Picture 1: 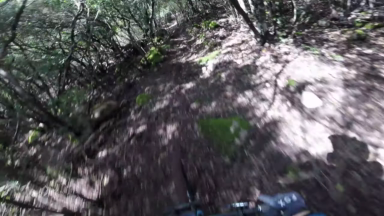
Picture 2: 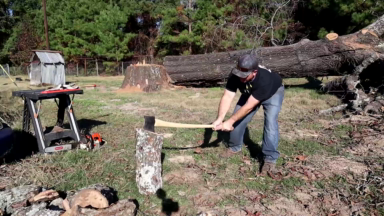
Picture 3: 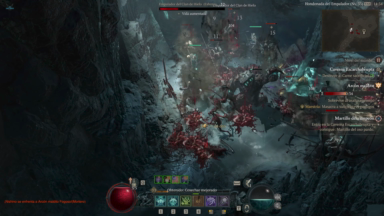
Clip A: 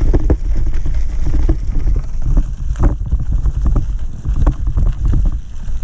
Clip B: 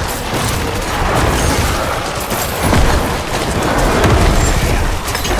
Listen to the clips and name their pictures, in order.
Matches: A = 1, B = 3